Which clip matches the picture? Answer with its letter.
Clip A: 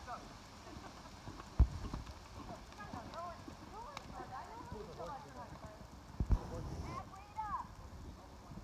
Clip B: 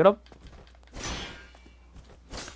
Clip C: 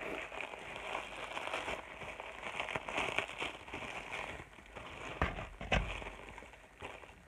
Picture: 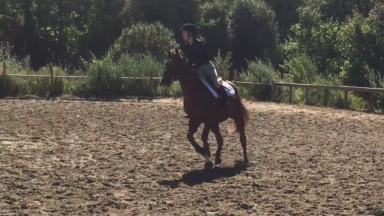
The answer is A